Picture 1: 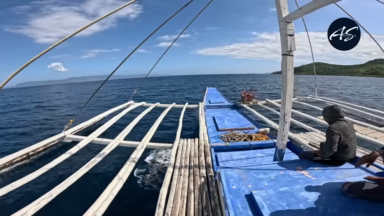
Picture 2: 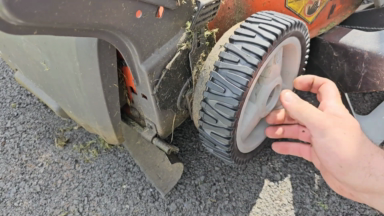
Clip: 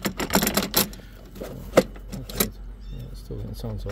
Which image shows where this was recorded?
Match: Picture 2